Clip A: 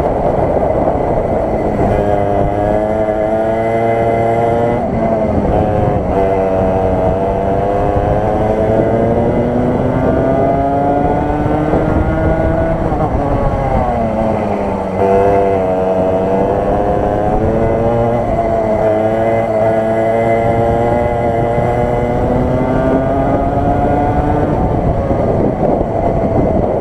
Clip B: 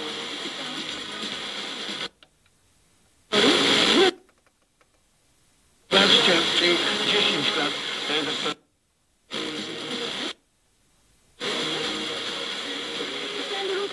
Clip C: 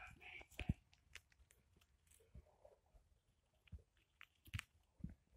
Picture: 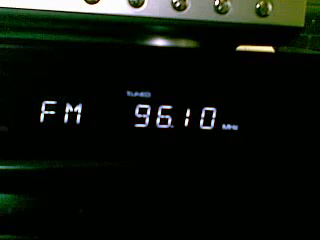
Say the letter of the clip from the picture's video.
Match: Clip B